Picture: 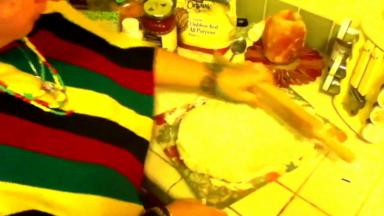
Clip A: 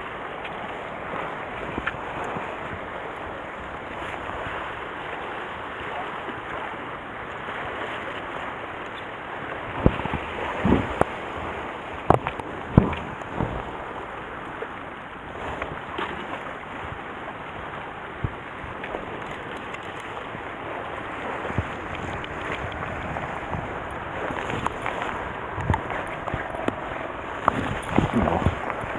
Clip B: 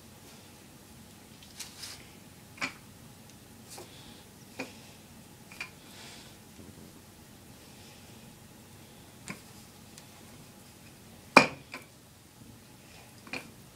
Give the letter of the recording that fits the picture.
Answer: B